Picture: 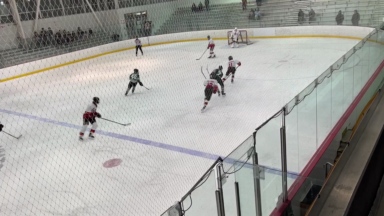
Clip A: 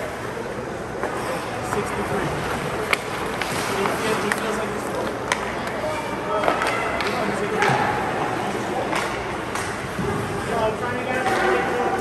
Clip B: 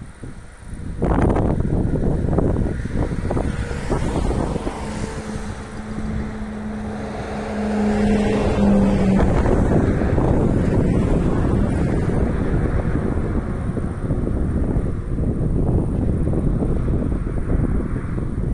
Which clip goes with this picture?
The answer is A